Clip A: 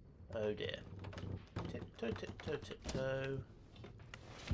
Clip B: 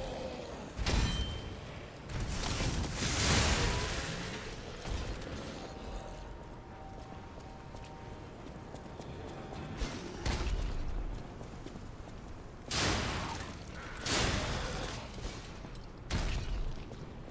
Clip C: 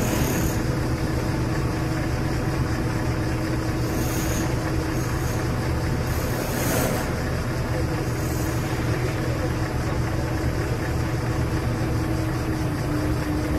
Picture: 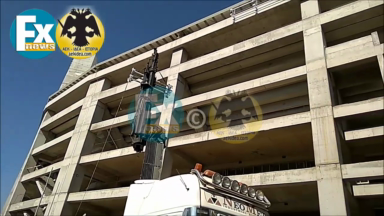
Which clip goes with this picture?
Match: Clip C